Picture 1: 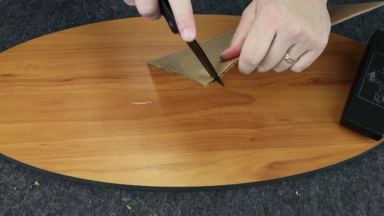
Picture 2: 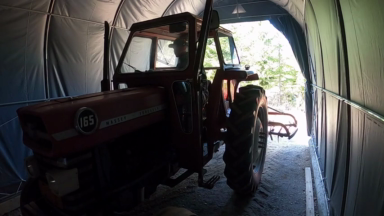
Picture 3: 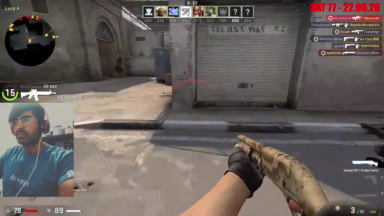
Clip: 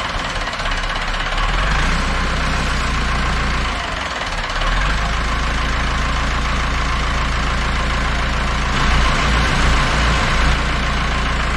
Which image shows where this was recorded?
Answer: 2